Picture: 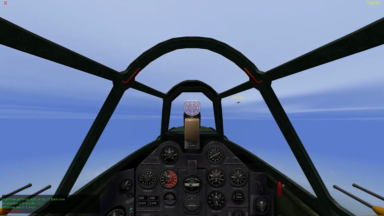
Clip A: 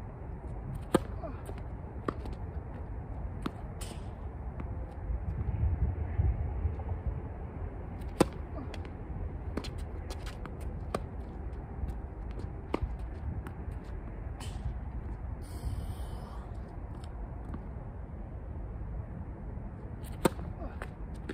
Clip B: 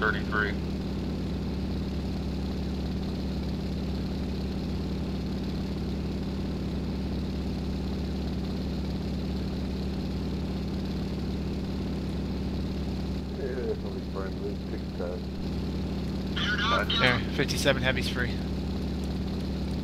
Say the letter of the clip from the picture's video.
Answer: B